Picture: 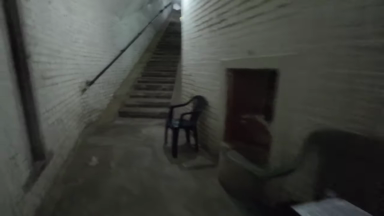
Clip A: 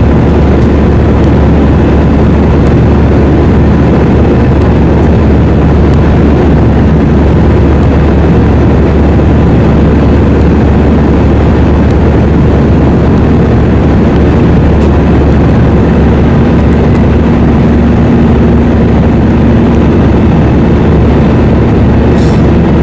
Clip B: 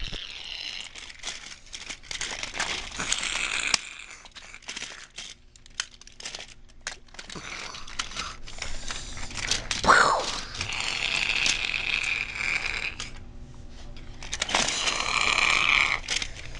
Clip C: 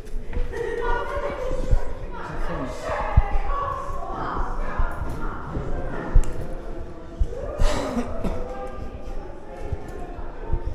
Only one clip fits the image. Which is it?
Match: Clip C